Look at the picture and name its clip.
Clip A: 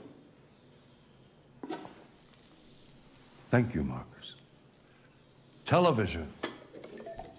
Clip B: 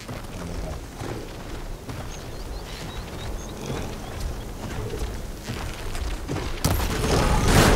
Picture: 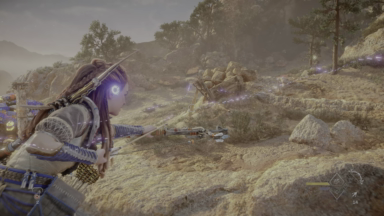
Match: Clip B